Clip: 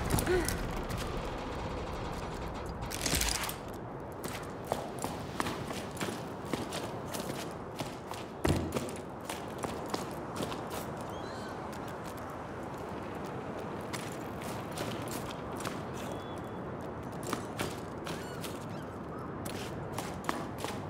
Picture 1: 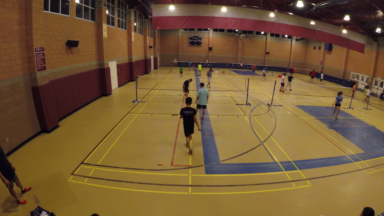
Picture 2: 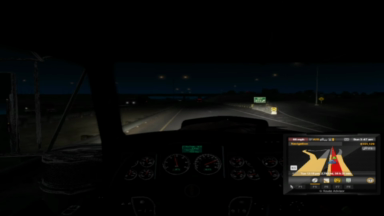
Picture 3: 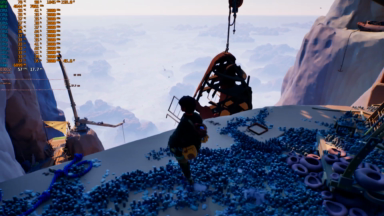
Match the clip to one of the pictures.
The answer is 3